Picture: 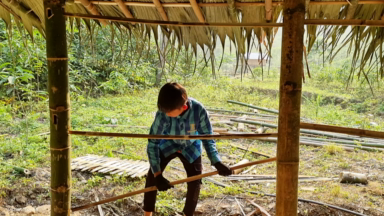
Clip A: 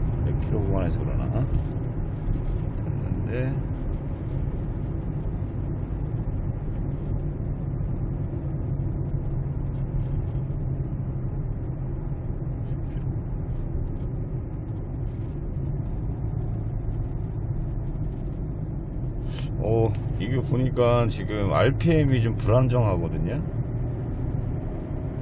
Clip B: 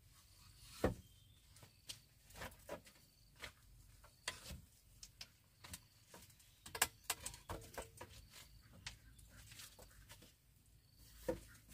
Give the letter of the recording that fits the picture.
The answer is B